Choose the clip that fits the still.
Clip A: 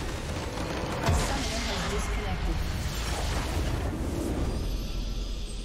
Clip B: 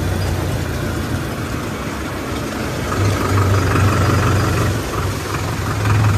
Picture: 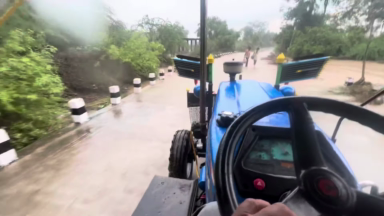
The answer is B